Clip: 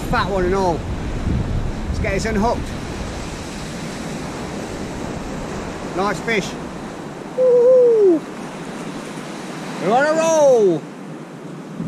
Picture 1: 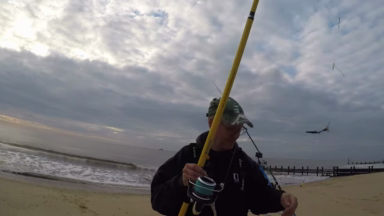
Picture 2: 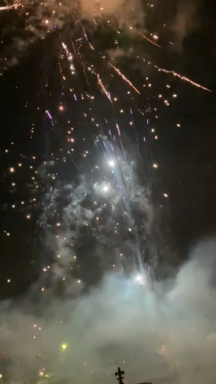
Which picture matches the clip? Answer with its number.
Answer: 1